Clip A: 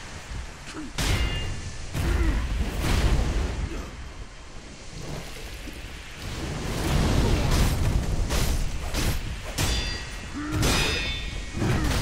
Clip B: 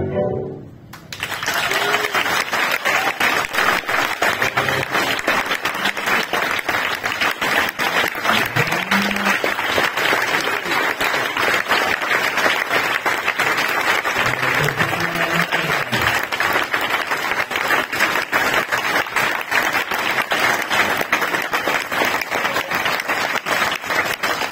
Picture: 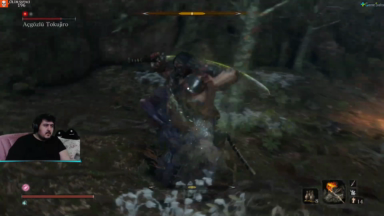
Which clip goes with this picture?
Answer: A